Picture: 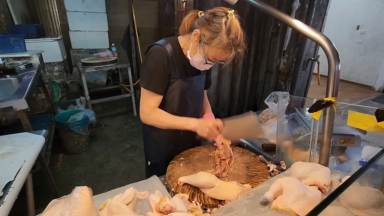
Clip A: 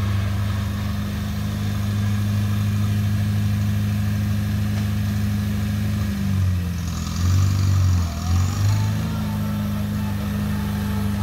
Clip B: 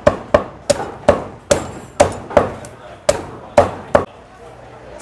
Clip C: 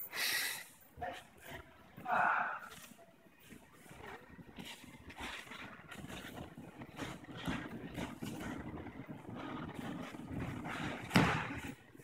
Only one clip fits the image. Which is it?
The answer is B